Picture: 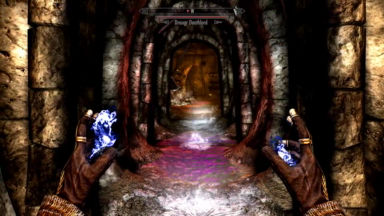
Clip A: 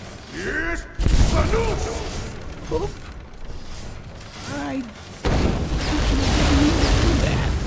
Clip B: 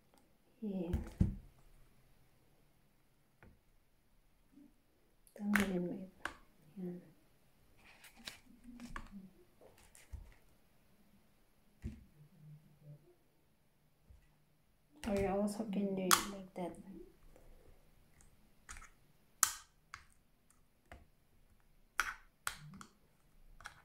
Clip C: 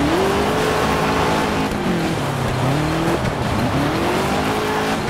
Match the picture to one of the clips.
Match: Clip A